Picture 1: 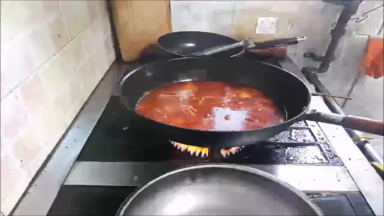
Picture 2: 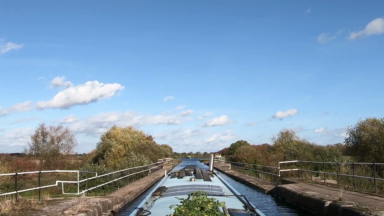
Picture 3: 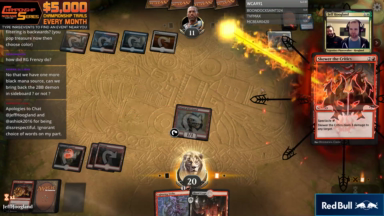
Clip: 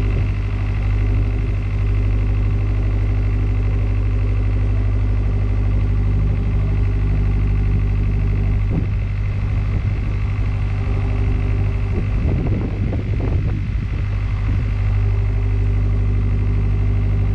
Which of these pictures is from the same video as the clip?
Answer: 2